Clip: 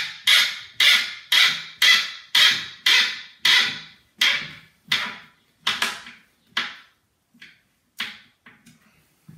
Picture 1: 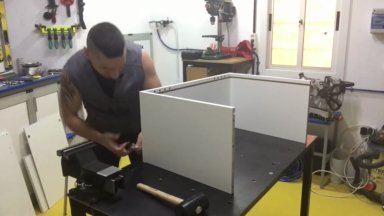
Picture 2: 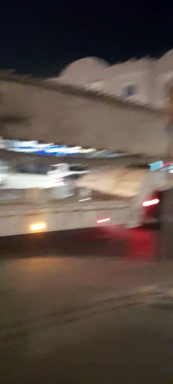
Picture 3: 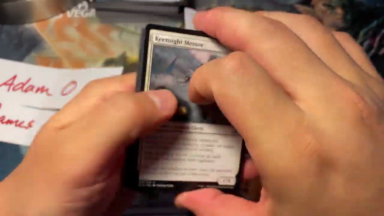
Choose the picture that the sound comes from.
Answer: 1